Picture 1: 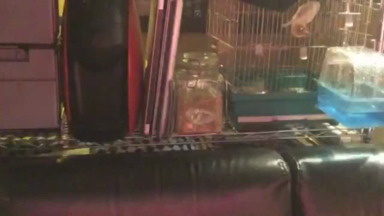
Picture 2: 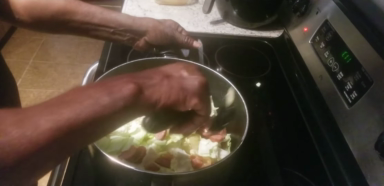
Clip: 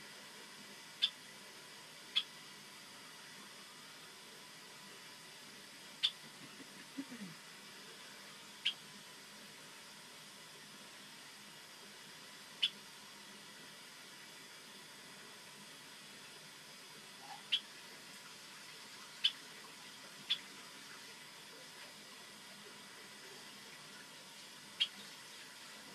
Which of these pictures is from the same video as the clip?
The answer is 1